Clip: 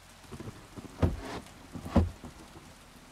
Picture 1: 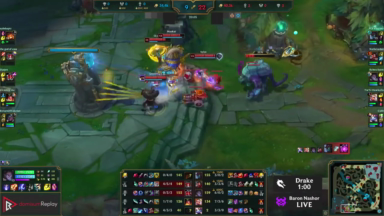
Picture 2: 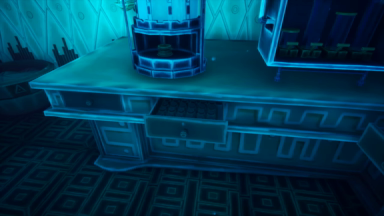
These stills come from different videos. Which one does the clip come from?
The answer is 2